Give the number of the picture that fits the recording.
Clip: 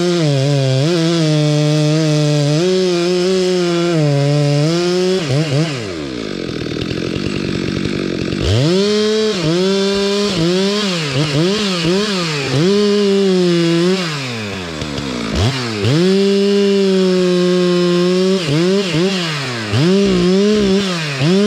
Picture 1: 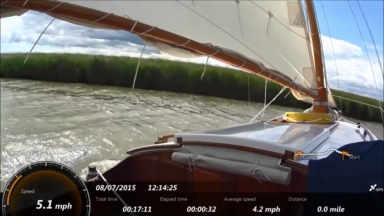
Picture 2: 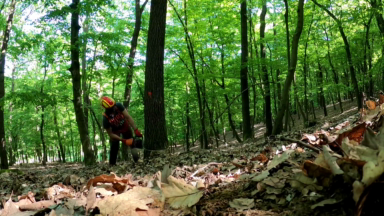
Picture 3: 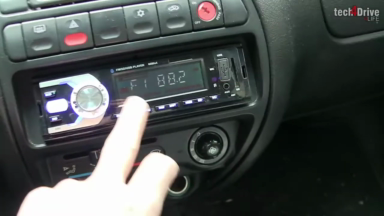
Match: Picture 2